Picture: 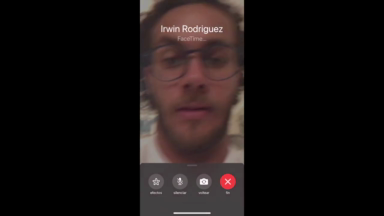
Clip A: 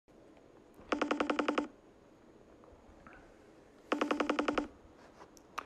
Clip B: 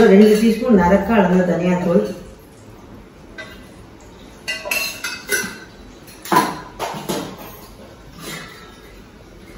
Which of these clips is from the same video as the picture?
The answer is A